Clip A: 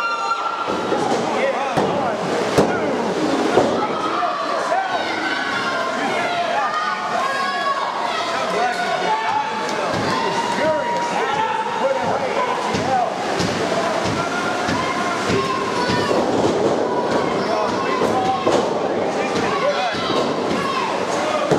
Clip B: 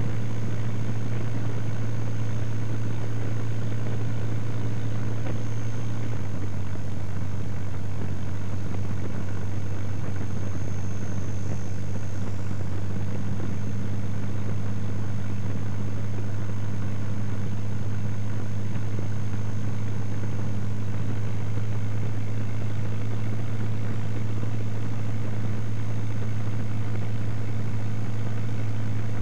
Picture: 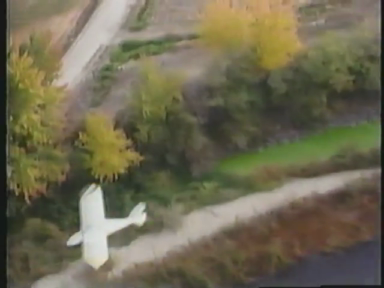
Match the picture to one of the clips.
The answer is B